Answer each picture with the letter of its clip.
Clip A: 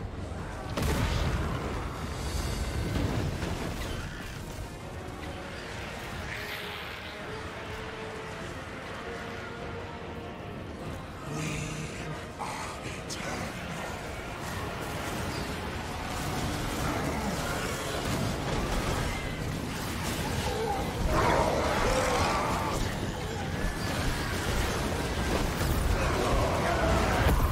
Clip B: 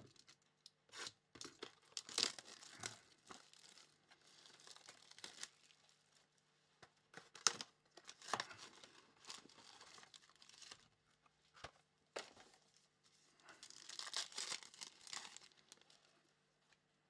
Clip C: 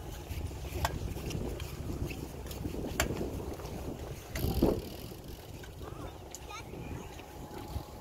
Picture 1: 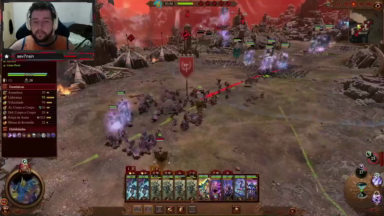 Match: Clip A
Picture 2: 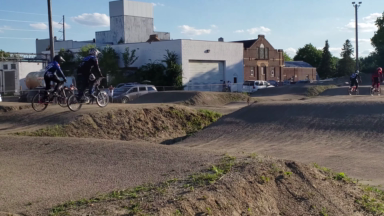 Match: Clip C